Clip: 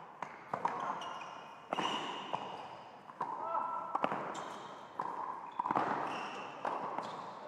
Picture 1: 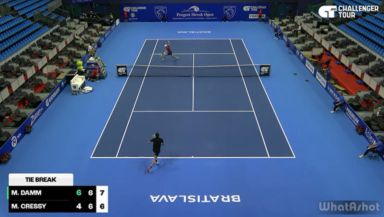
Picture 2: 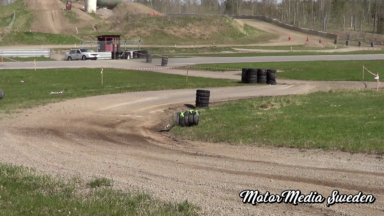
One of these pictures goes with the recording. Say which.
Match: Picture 1